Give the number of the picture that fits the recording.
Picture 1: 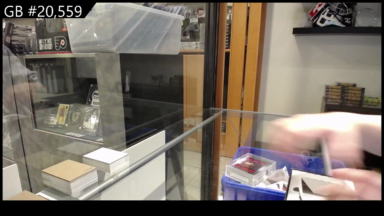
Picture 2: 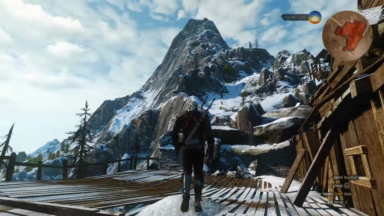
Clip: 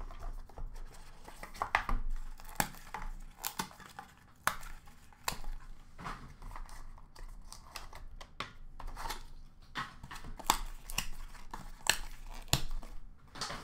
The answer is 1